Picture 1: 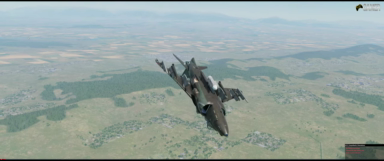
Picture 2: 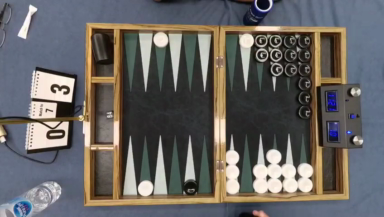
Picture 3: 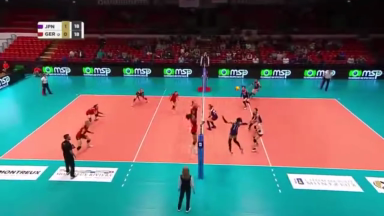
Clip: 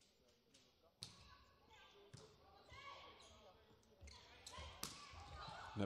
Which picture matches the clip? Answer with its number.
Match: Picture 3